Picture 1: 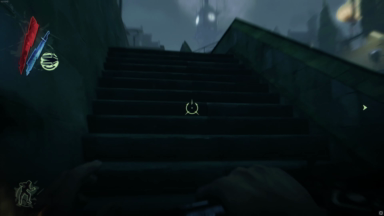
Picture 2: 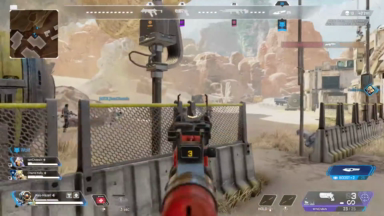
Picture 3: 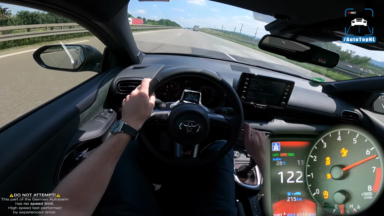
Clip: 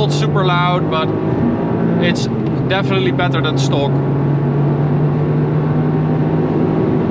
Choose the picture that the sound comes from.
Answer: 3